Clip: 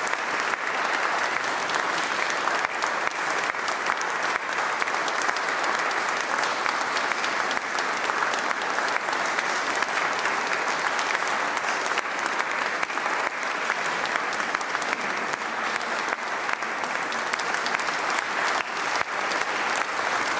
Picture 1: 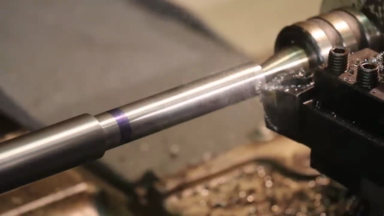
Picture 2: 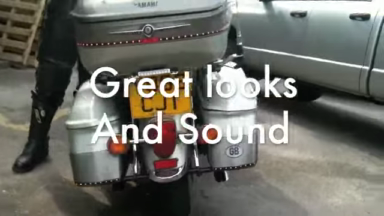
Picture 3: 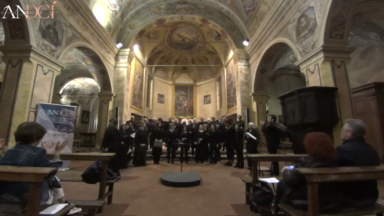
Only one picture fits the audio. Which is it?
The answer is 3